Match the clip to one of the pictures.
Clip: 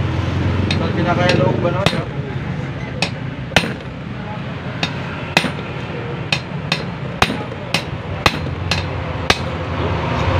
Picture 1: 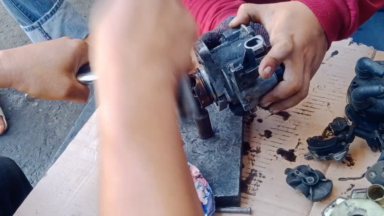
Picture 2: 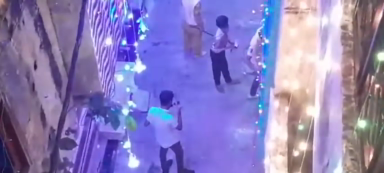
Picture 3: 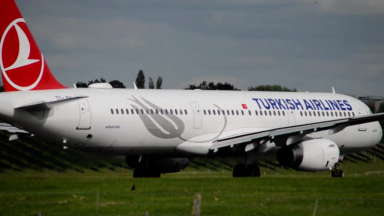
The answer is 1